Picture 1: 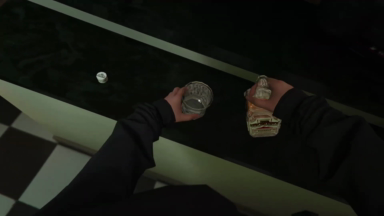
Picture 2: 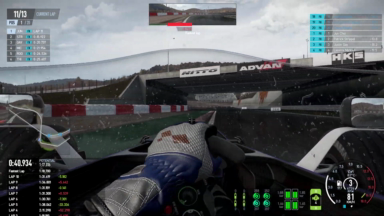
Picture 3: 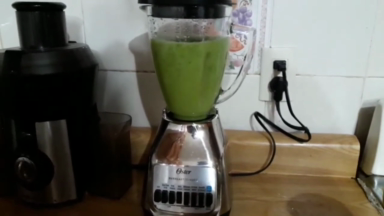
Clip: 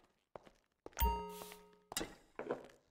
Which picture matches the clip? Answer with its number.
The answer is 1